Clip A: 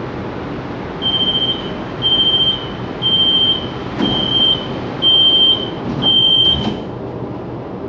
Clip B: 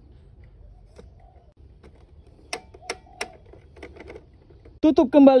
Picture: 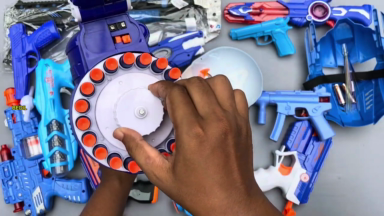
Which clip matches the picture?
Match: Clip B